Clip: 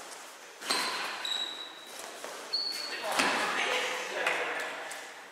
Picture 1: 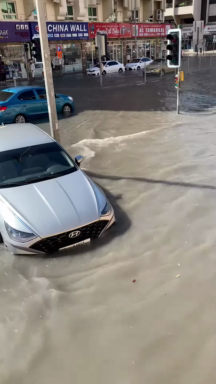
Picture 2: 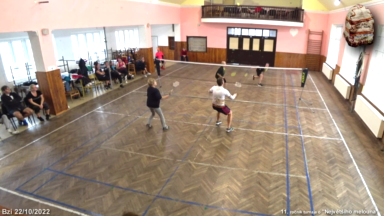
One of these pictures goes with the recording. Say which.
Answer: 2